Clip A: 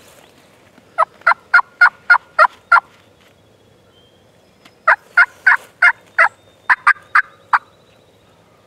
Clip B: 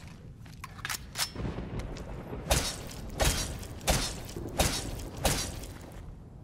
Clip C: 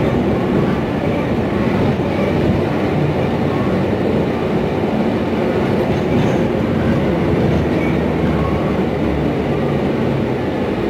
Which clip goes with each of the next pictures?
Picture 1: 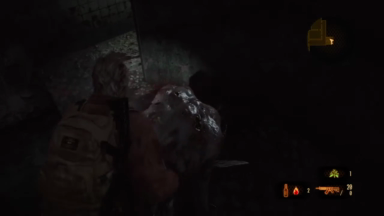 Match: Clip B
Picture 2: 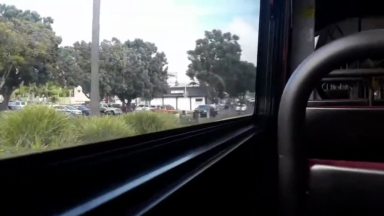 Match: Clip C